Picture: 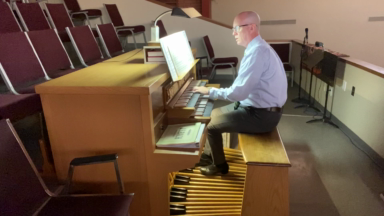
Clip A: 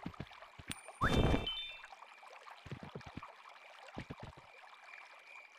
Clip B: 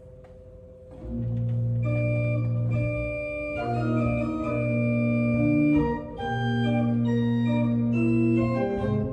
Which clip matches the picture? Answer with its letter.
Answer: B